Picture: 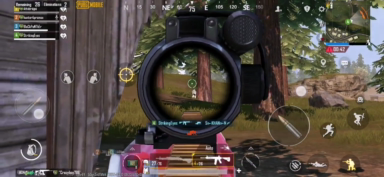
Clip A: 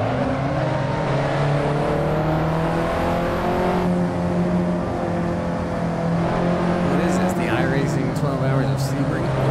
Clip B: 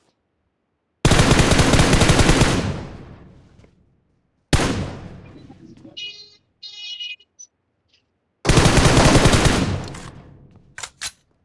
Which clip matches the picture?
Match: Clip B